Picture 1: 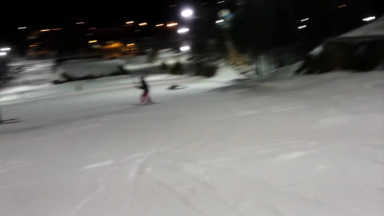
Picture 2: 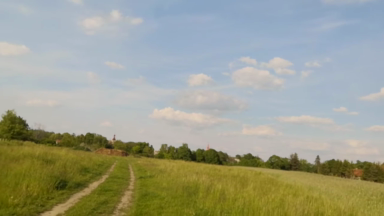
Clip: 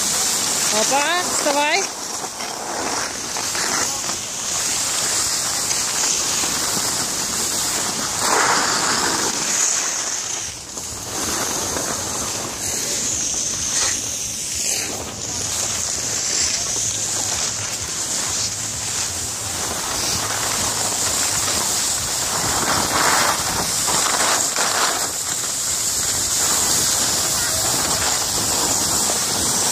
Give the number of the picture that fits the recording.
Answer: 1